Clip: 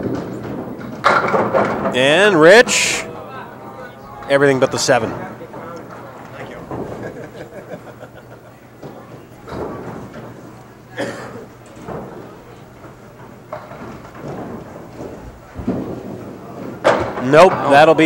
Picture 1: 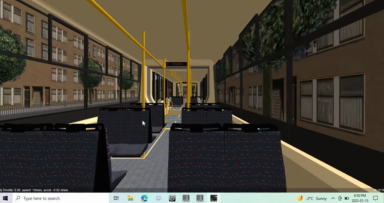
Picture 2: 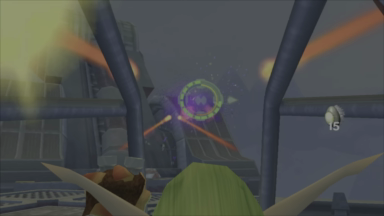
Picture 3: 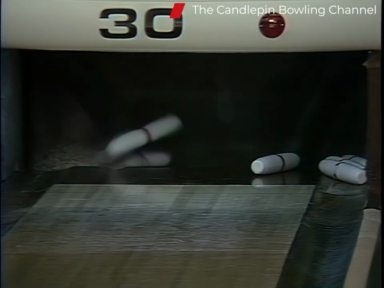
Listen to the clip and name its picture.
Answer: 3